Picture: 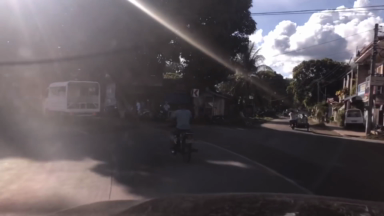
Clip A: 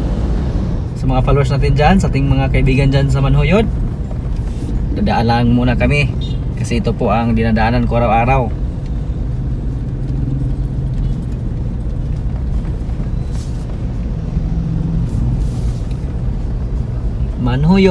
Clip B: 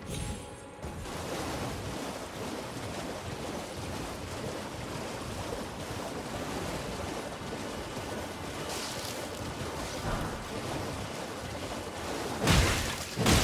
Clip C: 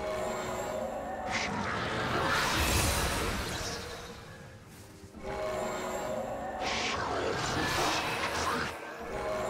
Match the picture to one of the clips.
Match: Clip A